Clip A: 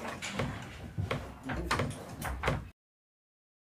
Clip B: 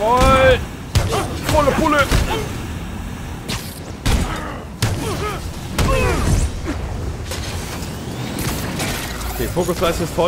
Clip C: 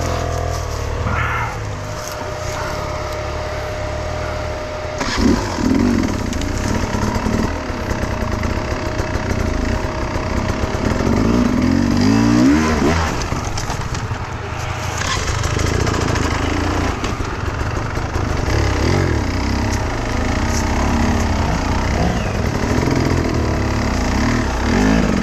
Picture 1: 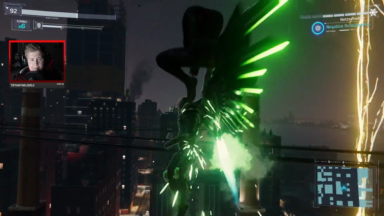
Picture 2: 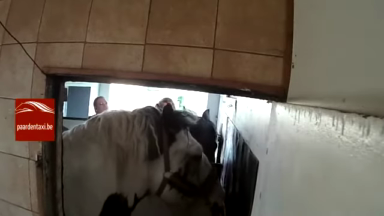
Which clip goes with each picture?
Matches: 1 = B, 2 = A